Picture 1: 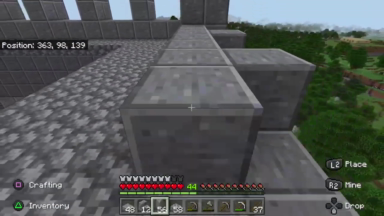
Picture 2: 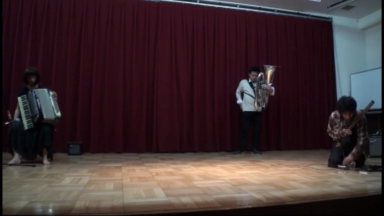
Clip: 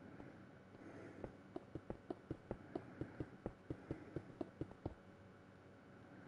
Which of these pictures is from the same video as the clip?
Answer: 1